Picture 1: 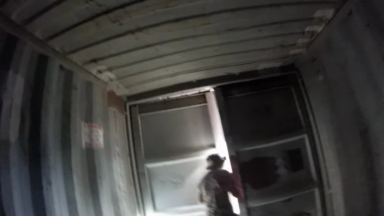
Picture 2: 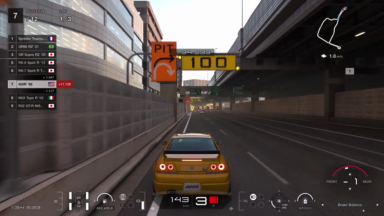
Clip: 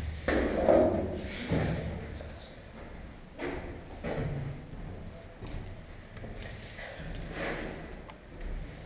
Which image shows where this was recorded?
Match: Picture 1